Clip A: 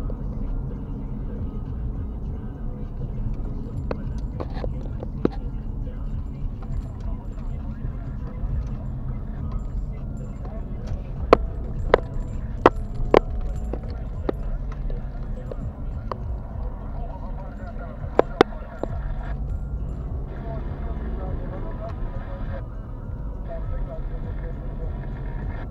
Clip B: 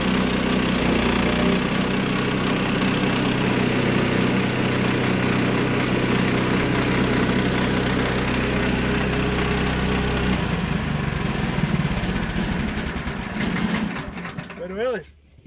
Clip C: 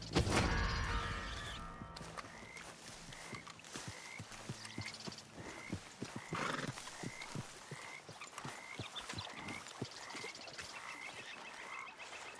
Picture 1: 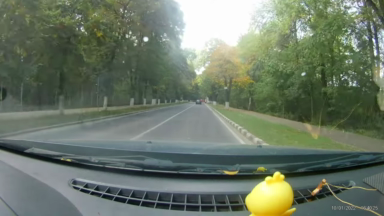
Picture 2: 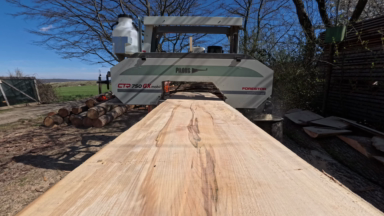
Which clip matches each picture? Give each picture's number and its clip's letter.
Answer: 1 A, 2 B